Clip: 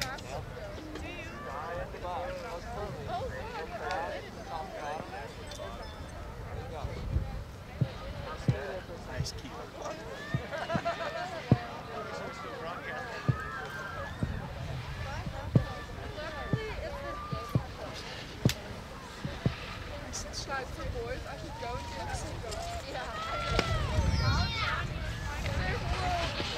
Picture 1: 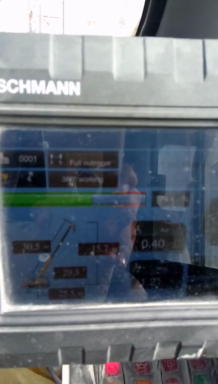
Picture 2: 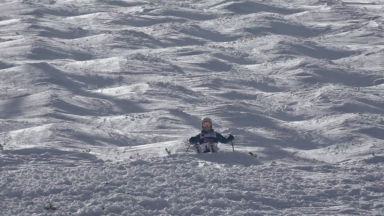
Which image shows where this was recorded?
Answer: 2